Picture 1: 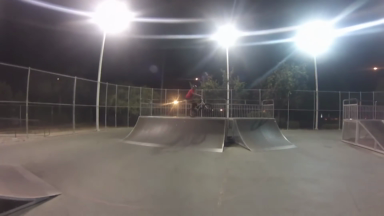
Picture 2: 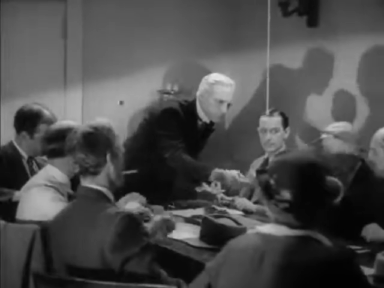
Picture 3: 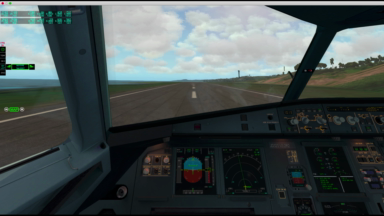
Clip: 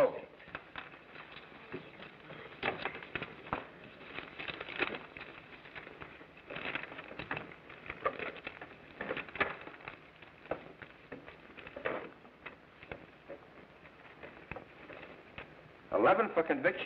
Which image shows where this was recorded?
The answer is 2